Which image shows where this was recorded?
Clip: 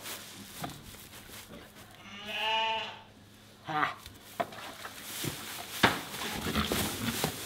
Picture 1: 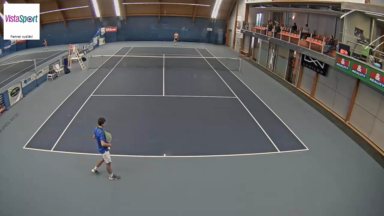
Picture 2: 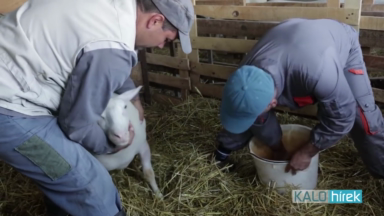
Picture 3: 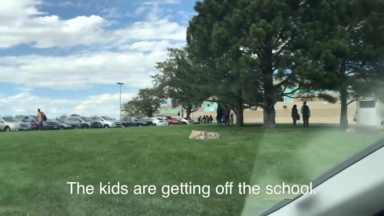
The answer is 2